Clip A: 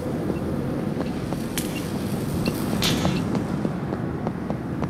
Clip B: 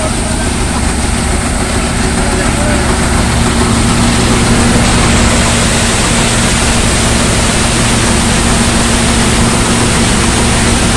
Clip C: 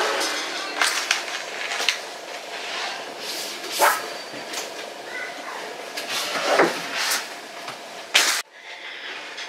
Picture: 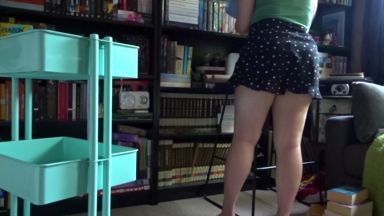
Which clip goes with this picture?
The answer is C